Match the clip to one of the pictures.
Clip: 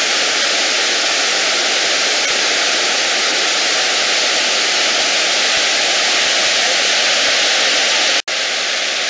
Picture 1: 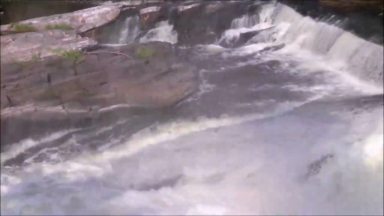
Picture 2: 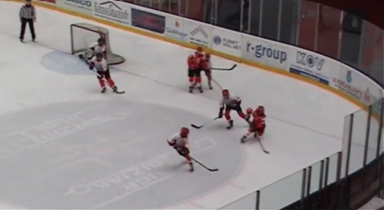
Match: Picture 1